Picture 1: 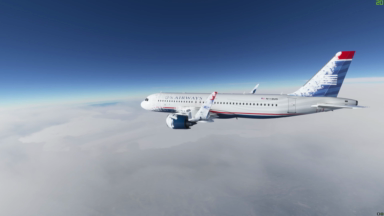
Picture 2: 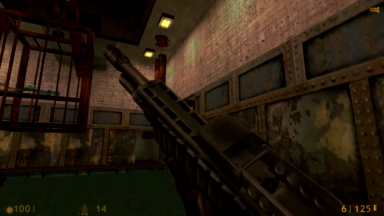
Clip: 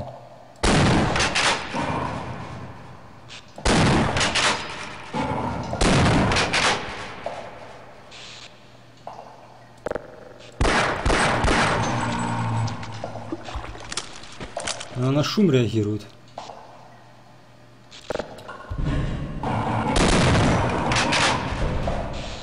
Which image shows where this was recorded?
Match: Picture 2